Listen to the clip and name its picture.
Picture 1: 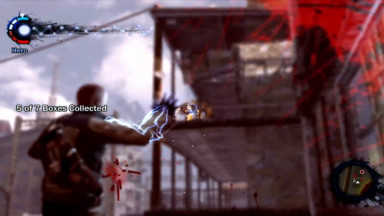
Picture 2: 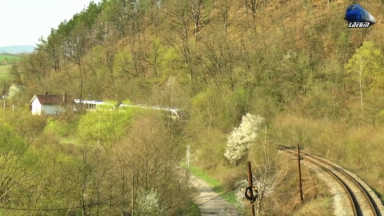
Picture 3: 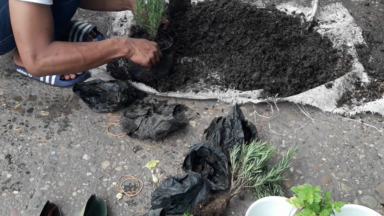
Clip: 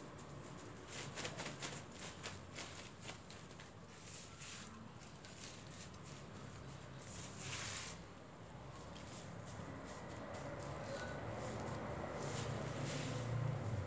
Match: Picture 3